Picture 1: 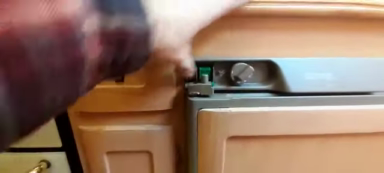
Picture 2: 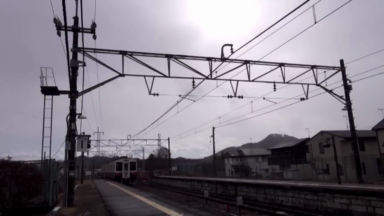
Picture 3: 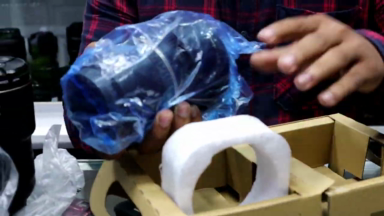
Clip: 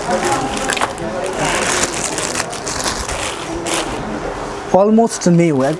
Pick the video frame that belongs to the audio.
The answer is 3